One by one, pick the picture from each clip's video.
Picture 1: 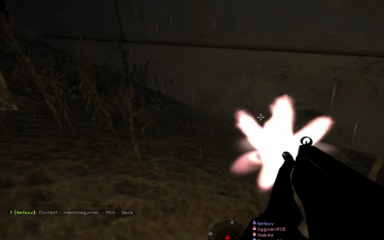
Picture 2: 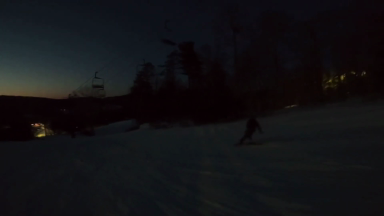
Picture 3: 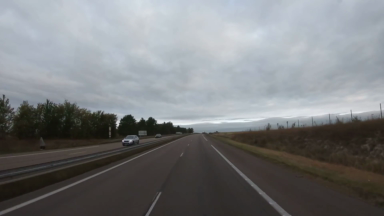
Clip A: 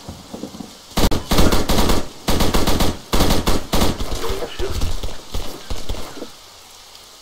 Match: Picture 1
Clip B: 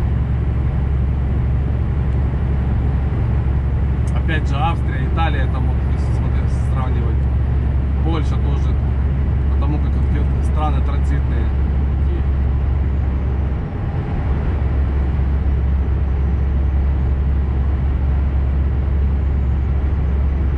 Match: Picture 3